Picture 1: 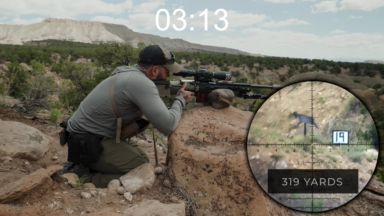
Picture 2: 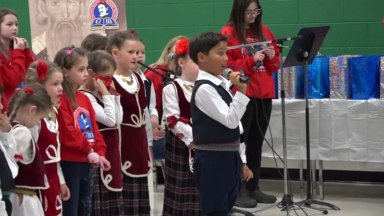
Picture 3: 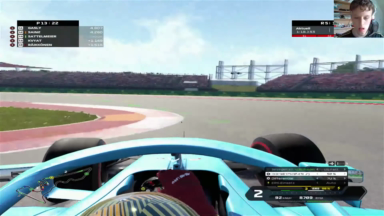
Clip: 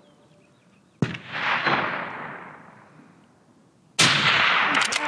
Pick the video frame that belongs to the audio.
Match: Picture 1